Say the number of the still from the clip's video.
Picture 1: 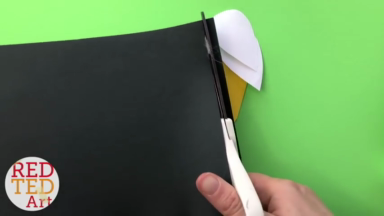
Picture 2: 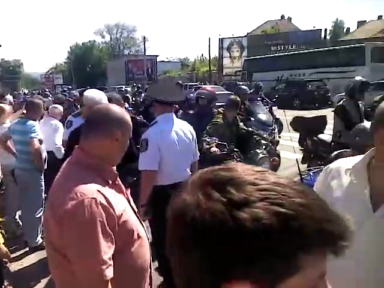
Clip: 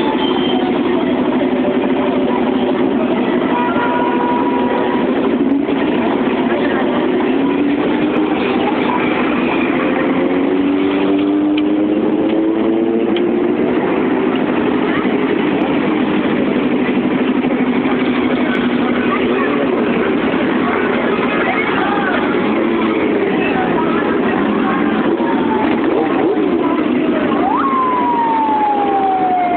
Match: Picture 2